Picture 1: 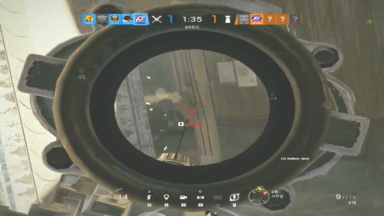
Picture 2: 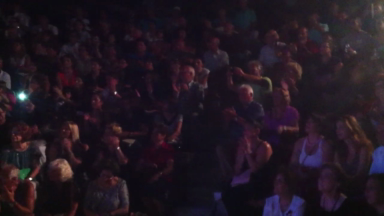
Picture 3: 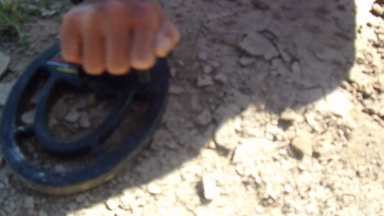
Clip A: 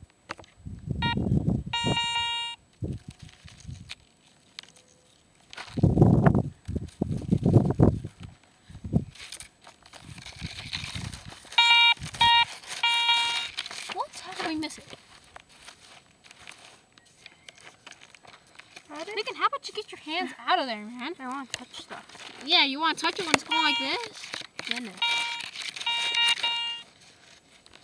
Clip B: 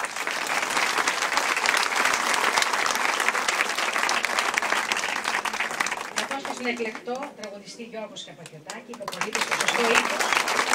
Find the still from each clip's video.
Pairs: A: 3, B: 2